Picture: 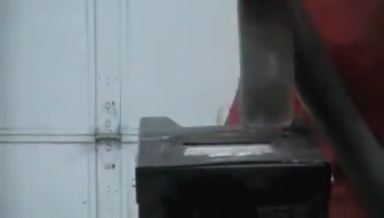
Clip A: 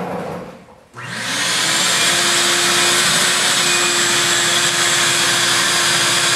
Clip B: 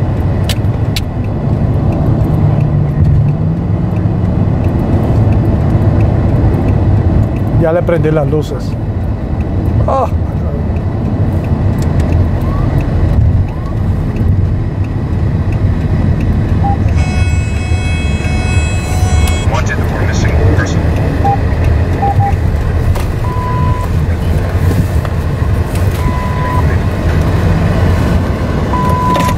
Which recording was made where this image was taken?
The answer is A